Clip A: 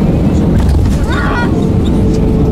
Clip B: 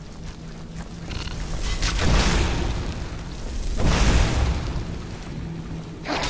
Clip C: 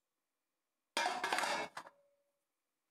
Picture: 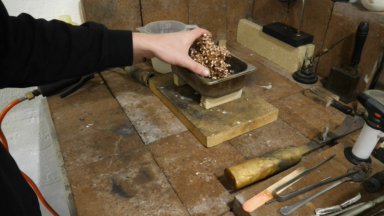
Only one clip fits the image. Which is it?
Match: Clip C